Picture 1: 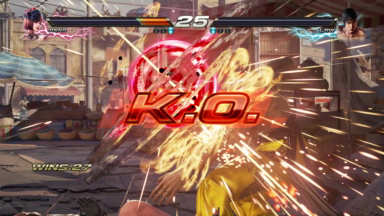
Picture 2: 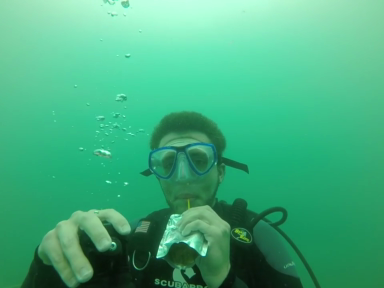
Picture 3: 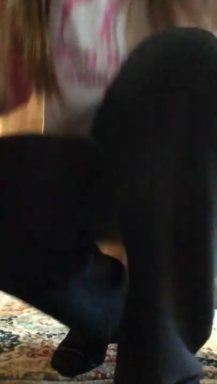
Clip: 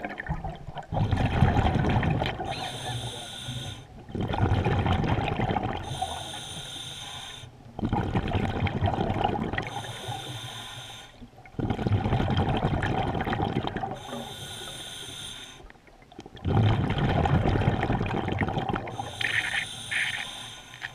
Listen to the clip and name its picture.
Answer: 2